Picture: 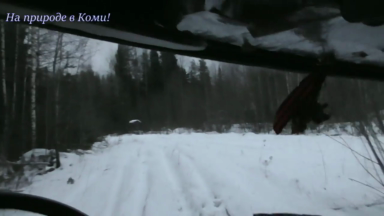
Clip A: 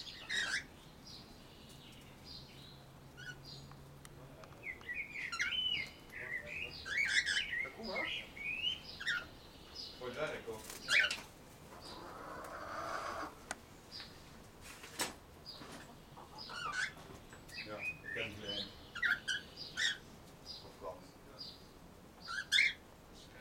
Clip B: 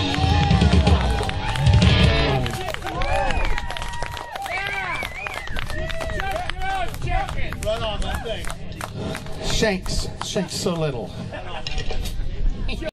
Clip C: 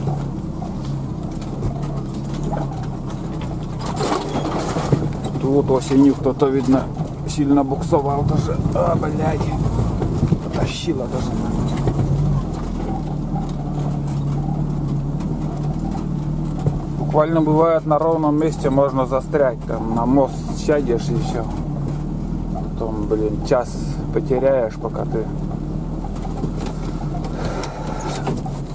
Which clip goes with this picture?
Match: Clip C